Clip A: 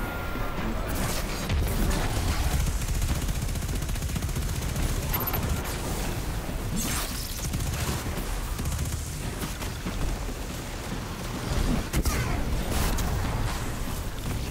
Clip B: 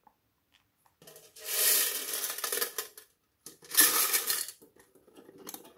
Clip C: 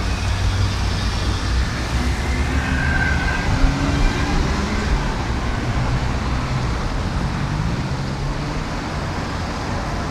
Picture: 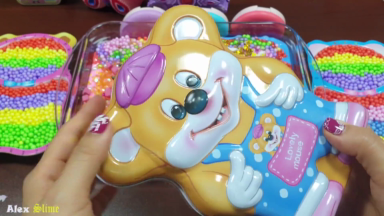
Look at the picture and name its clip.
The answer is B